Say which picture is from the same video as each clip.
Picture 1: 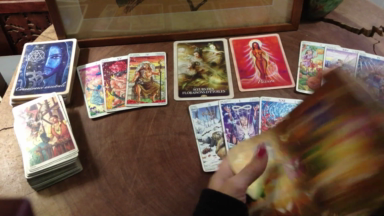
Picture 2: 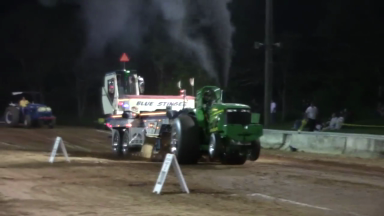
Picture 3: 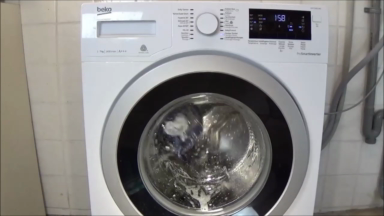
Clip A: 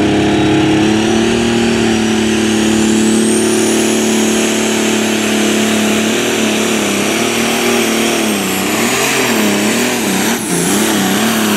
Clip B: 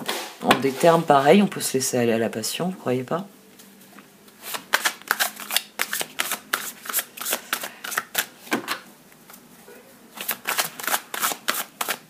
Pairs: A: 2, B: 1